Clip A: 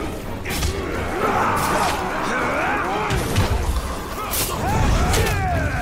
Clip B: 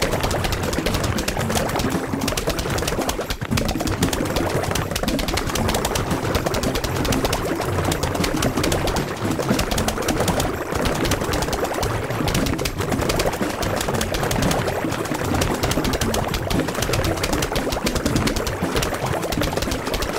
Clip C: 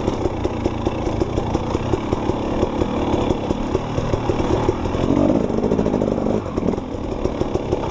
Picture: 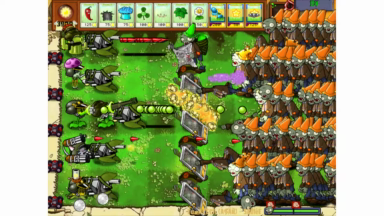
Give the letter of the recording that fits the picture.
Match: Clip B